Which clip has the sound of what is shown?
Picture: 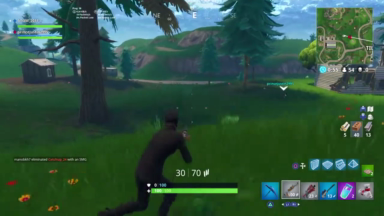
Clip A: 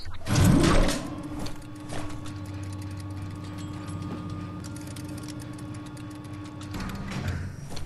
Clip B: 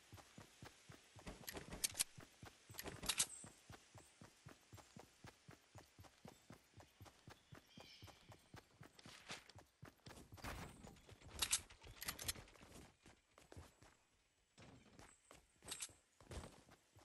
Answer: B